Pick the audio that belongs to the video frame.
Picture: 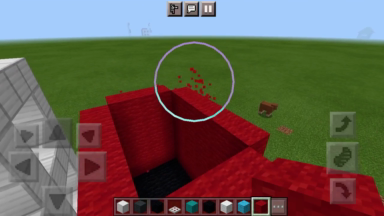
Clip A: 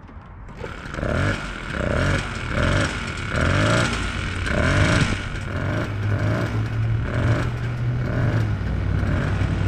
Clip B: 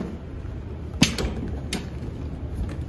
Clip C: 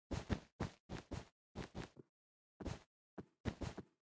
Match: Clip C